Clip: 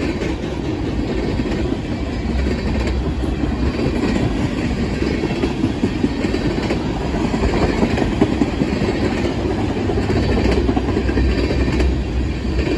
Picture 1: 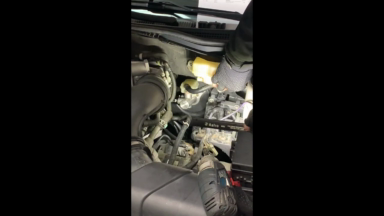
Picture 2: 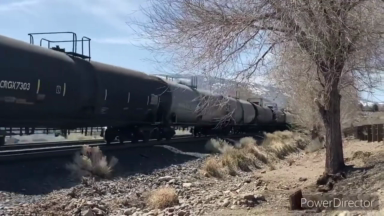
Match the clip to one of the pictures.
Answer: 2